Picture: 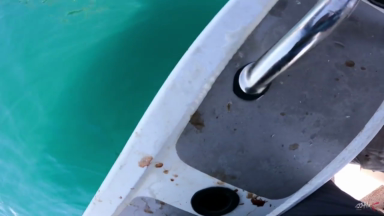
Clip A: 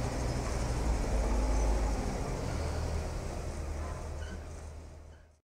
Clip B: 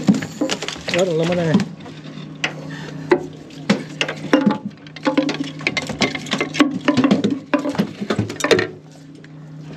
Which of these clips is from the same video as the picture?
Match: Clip B